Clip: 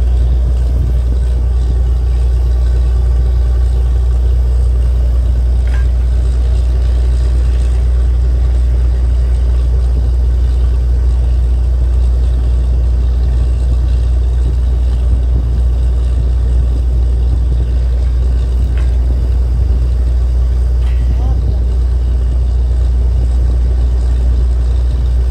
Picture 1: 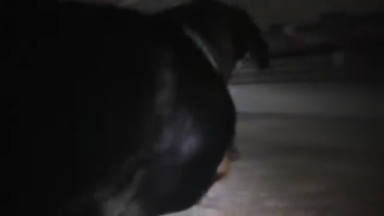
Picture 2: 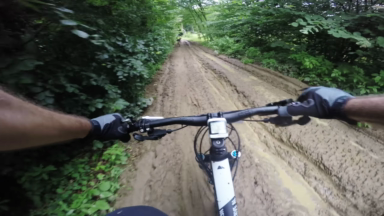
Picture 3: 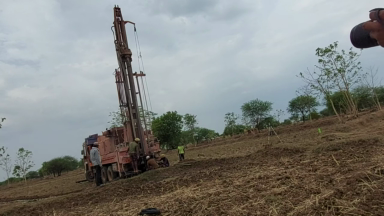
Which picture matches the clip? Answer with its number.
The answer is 3